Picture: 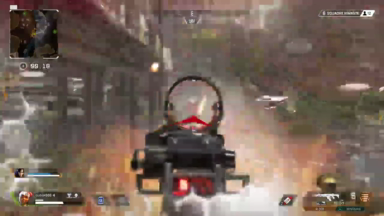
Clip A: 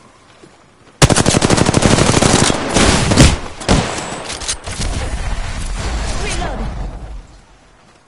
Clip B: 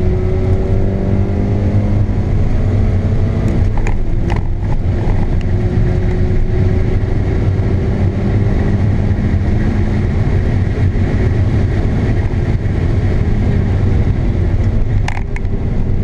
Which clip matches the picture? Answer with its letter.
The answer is A